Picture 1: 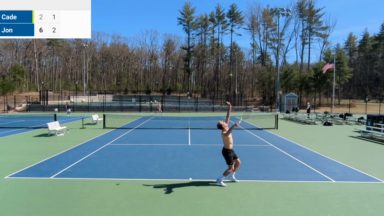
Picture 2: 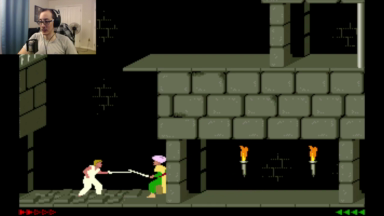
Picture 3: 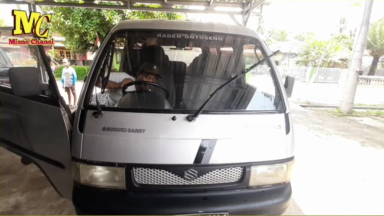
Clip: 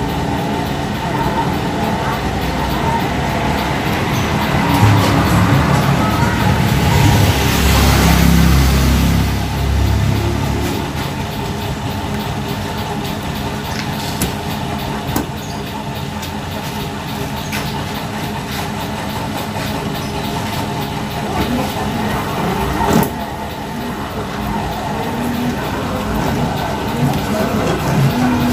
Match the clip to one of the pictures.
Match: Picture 3